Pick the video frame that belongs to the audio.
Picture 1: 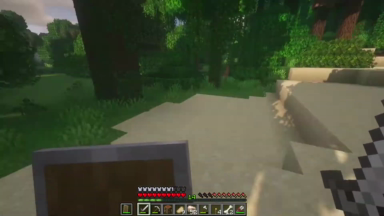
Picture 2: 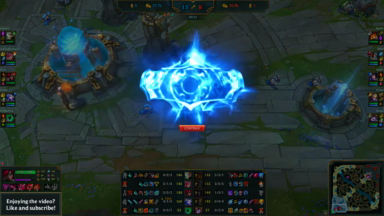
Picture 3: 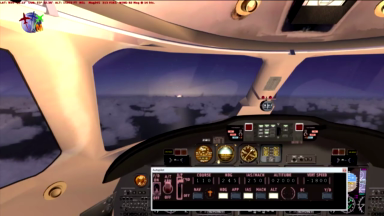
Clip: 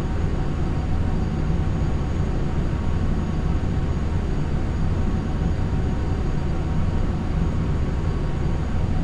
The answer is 3